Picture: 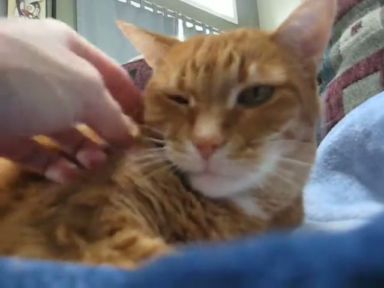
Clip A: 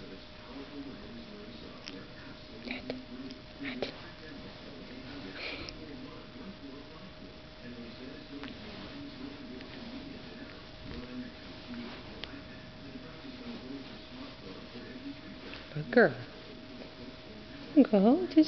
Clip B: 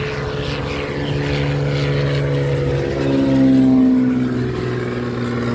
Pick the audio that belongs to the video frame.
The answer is A